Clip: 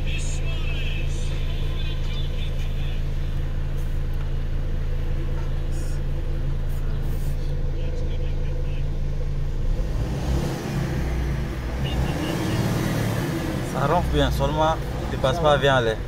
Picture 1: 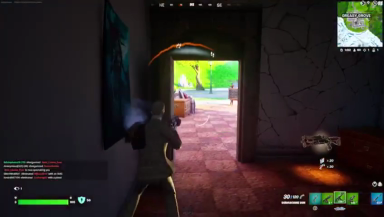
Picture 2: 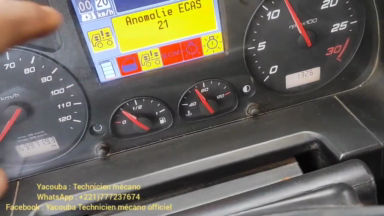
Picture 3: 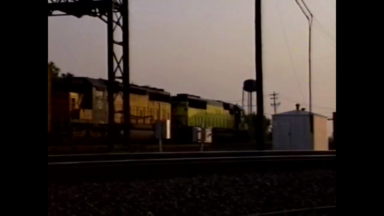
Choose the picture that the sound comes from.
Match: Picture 2